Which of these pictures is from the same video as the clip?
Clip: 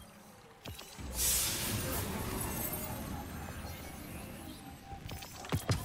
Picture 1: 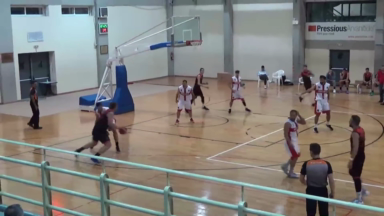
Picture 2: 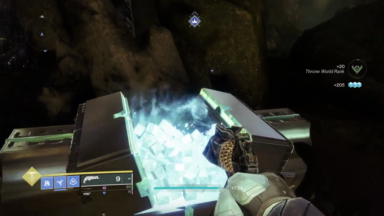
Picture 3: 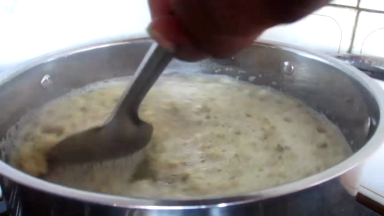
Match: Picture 2